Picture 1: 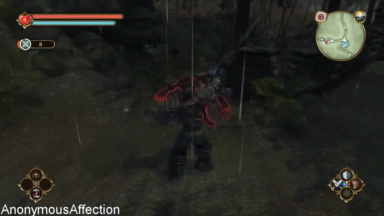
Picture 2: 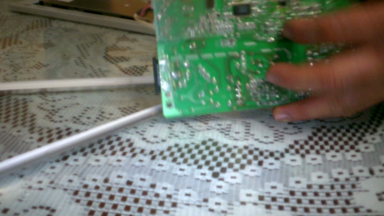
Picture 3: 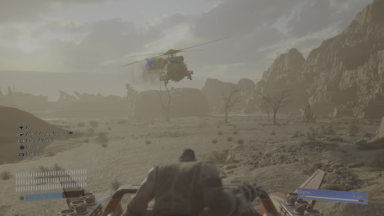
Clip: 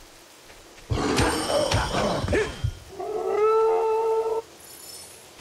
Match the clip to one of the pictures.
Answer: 1